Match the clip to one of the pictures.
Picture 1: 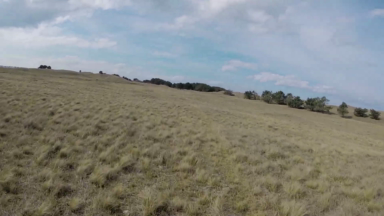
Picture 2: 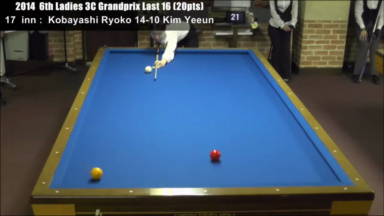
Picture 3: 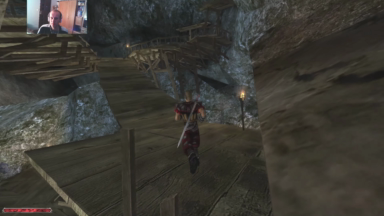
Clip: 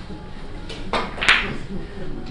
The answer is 2